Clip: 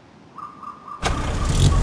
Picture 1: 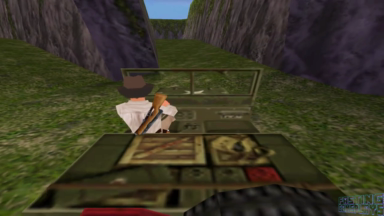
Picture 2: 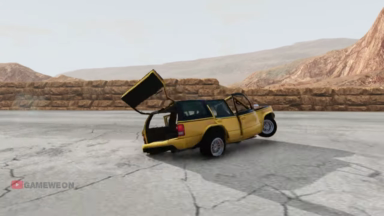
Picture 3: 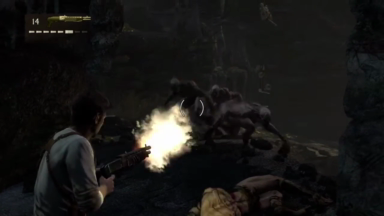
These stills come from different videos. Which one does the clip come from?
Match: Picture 1